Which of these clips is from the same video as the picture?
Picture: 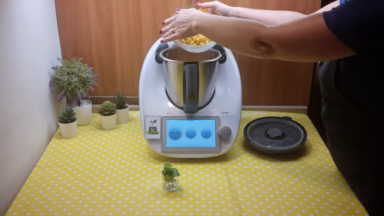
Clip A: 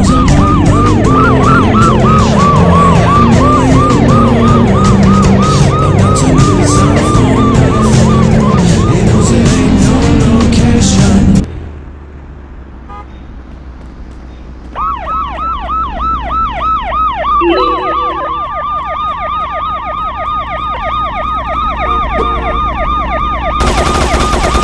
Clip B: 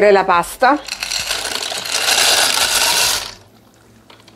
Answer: B